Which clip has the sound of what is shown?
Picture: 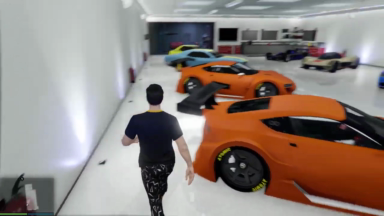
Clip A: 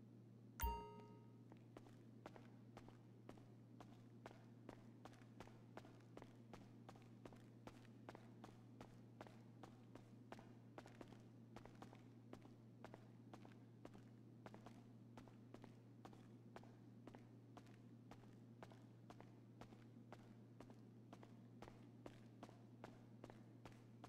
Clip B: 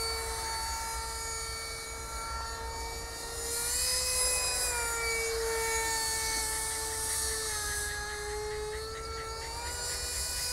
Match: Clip A